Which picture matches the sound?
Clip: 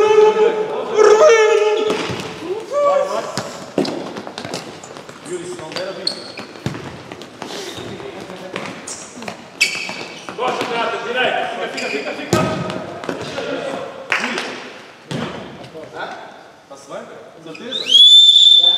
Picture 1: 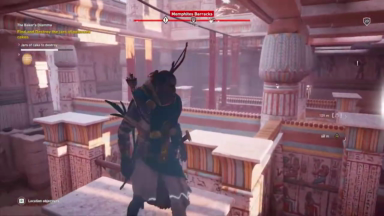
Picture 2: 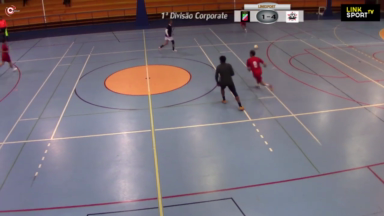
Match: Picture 2